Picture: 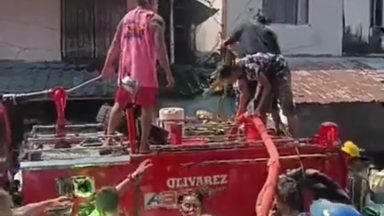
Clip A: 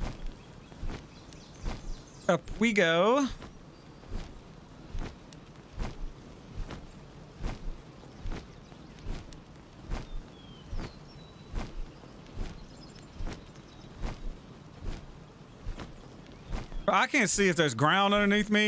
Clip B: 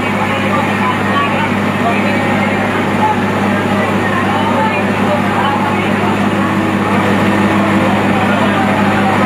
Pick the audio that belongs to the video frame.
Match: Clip B